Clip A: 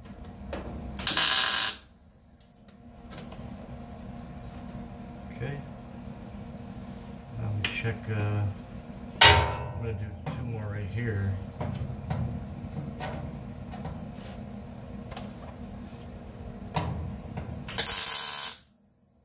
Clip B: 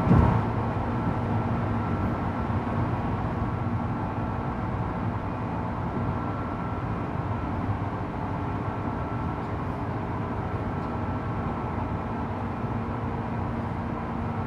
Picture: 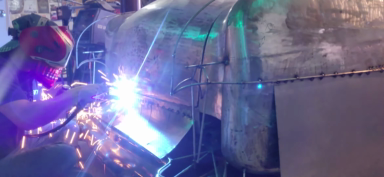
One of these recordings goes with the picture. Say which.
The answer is A